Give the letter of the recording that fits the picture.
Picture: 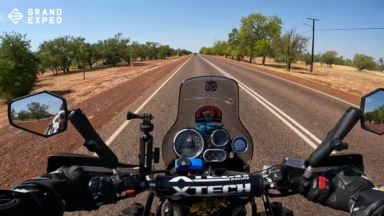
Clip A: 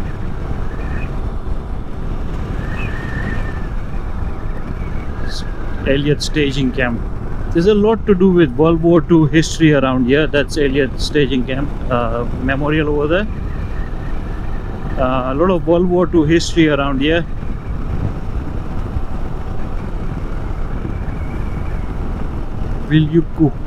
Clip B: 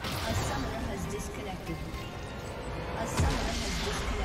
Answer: A